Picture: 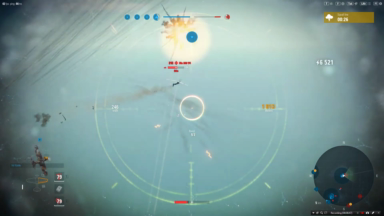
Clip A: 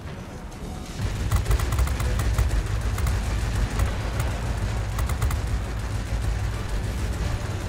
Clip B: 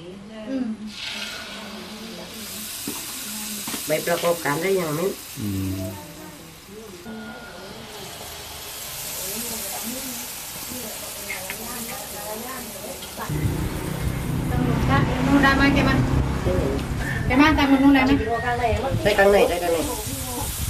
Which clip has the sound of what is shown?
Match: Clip A